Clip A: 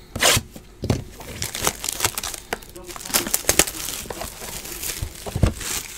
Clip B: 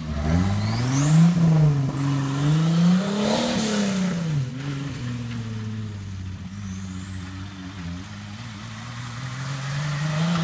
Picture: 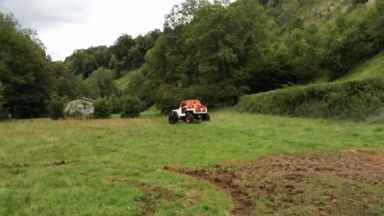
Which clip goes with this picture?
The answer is B